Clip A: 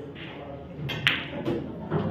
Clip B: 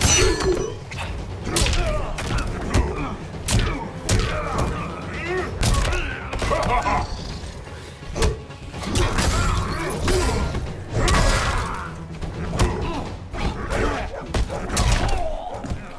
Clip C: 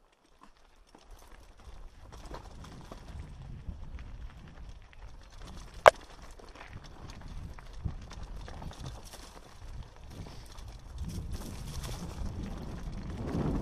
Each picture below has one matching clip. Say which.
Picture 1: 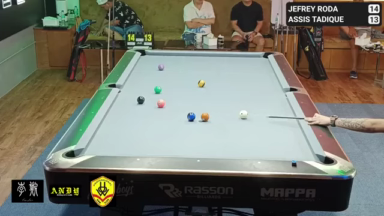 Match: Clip A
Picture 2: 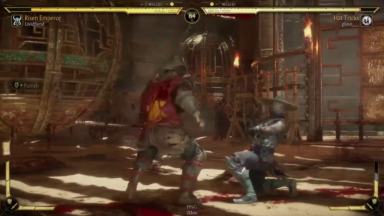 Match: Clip B